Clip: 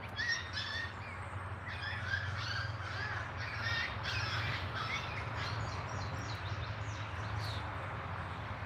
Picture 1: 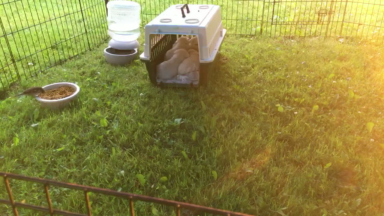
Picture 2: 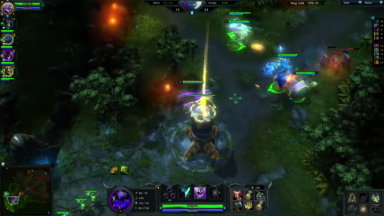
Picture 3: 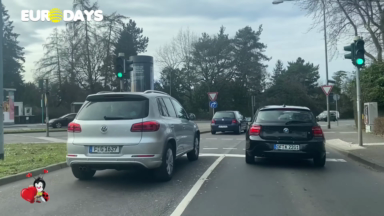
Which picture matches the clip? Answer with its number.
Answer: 1